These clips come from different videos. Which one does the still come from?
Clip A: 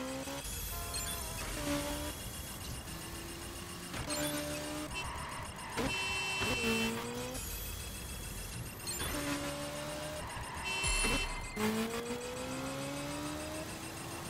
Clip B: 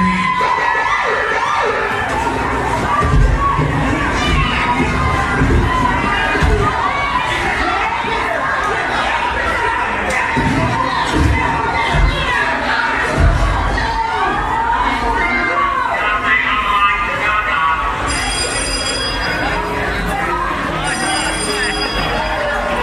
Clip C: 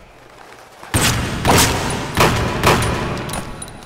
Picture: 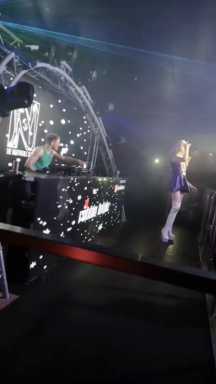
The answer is B